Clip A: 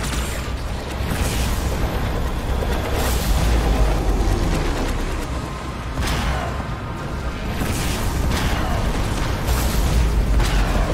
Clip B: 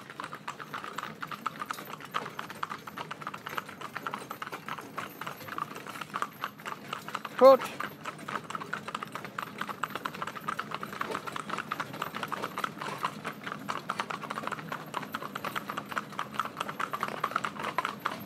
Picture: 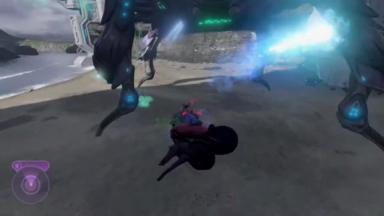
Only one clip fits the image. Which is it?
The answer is A